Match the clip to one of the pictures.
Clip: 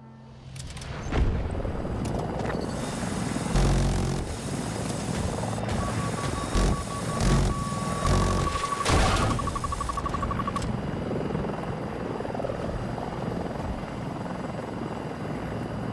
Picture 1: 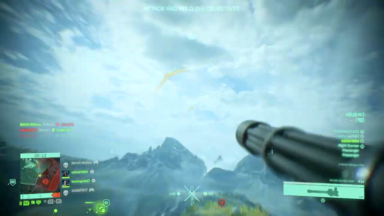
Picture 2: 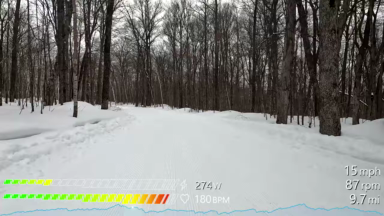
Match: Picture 1